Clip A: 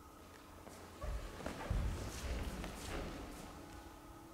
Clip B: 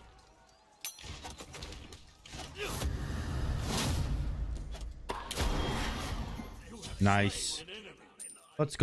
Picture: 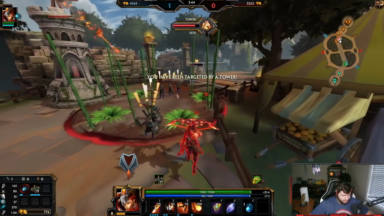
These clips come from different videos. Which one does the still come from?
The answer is B